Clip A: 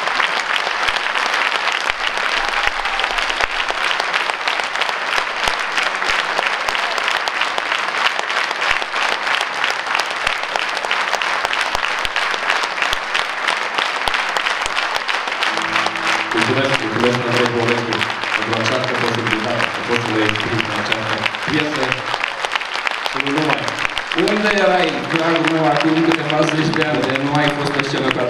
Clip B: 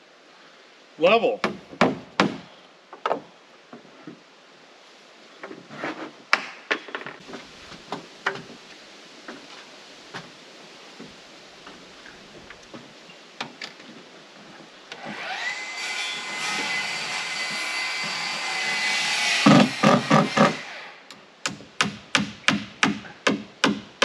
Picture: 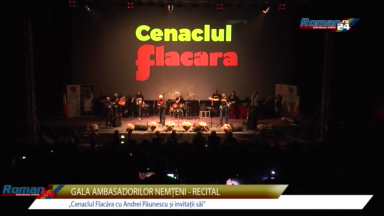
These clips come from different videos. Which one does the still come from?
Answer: A